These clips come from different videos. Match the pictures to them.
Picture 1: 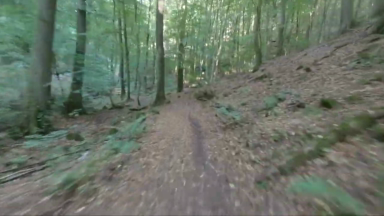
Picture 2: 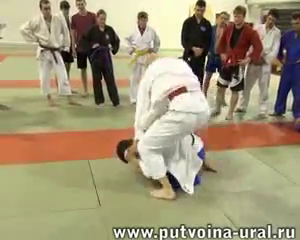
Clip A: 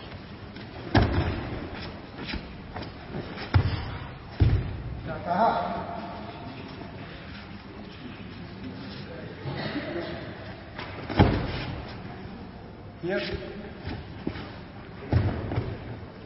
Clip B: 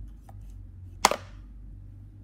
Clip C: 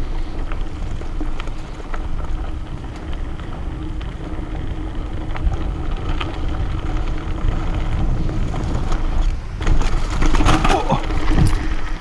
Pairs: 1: C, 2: A